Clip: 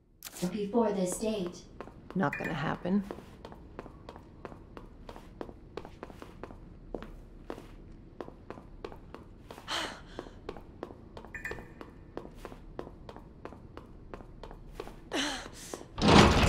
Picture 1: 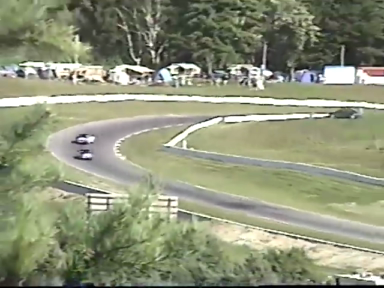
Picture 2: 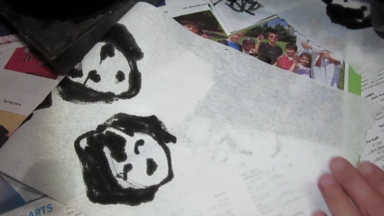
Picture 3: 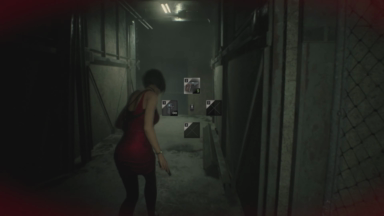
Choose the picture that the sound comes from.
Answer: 3